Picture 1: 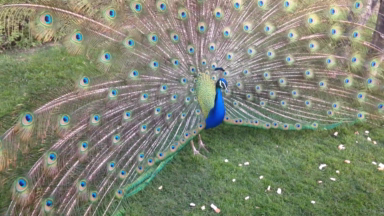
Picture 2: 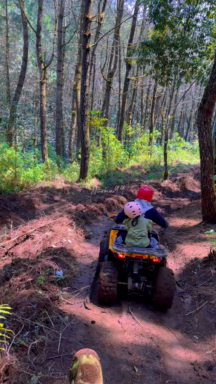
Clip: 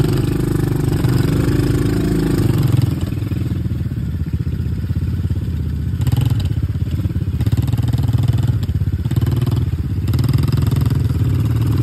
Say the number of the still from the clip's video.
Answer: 2